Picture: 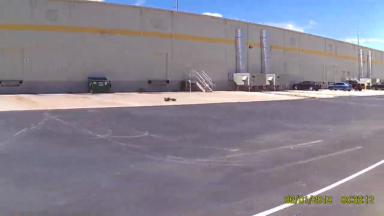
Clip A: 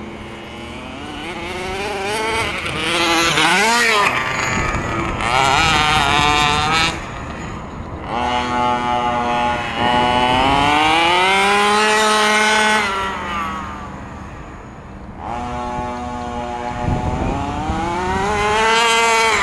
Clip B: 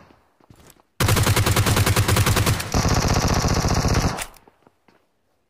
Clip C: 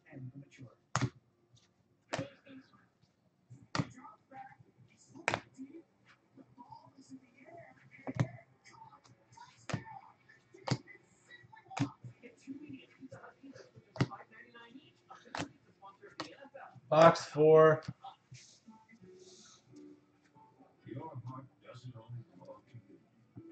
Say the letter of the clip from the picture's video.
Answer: A